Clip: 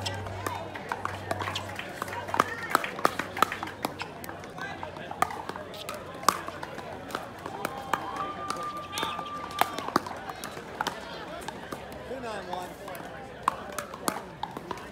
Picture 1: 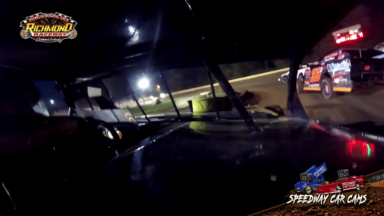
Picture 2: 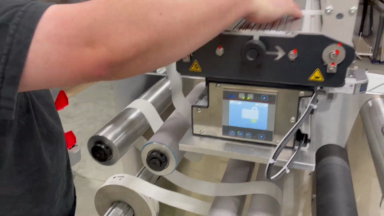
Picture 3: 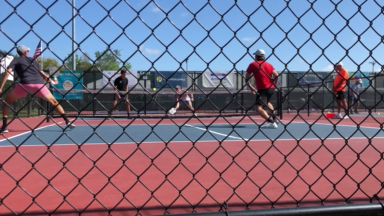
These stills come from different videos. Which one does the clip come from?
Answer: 3